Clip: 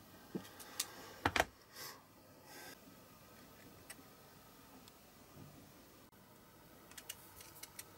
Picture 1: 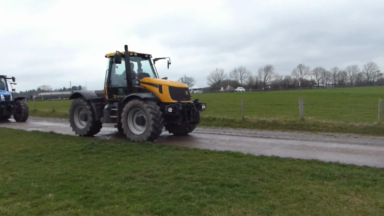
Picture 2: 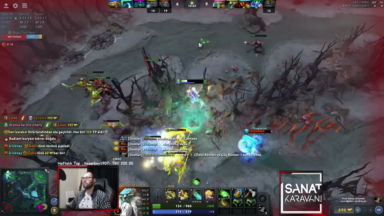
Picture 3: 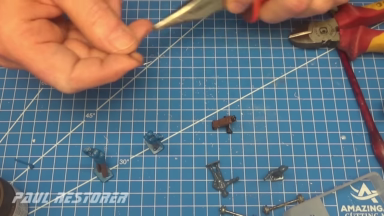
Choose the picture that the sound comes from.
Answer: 3